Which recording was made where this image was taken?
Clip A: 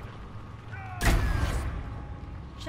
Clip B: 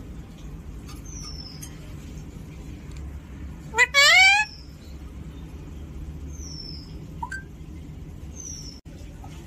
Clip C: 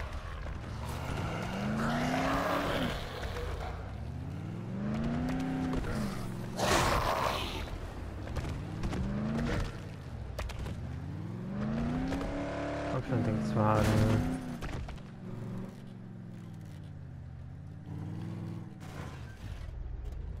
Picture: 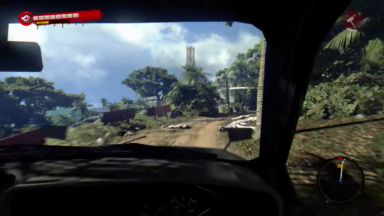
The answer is C